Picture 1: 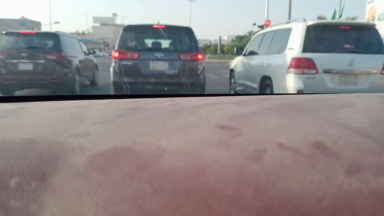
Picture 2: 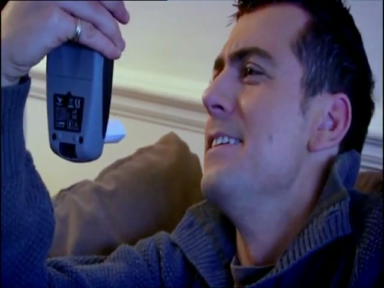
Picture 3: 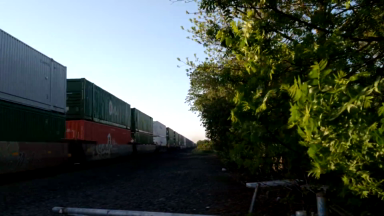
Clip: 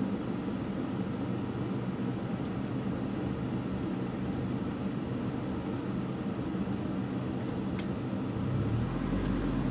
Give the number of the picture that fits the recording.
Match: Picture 1